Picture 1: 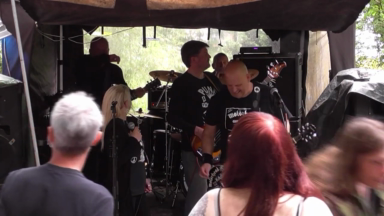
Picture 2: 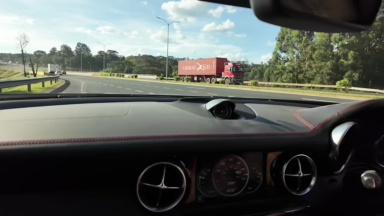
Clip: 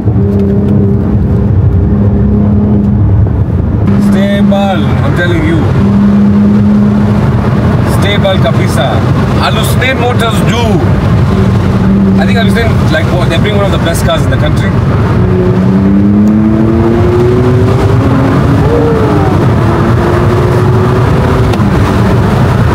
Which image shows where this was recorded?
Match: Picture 2